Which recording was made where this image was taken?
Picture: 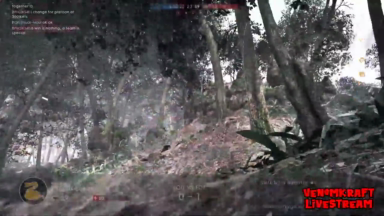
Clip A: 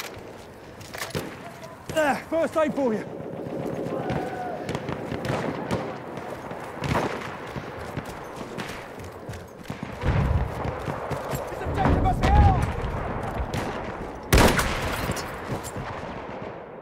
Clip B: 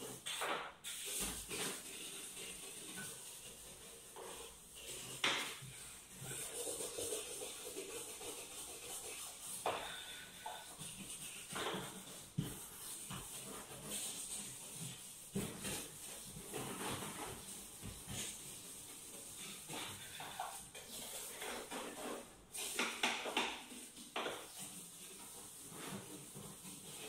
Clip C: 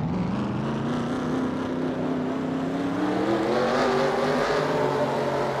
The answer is A